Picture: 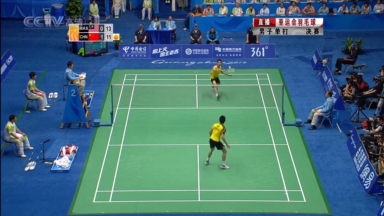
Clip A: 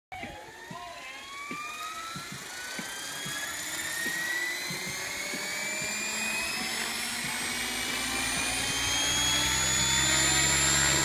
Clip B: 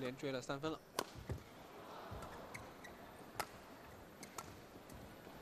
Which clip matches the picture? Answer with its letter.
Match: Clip B